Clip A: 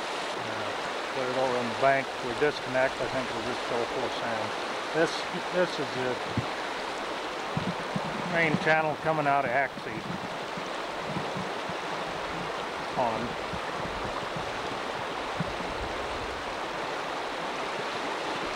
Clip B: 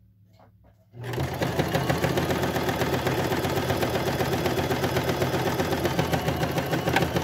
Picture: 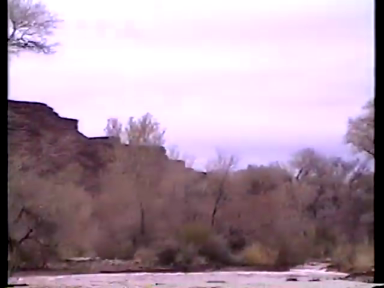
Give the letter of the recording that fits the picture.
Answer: A